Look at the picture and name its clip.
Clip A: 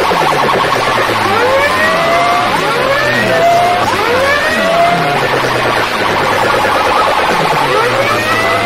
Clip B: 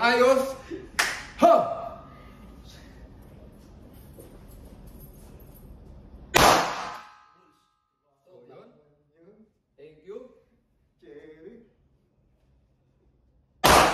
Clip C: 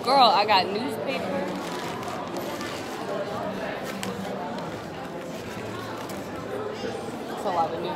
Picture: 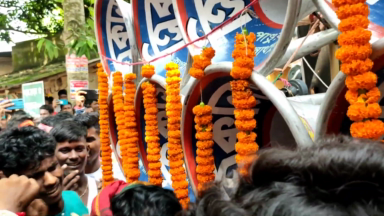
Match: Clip A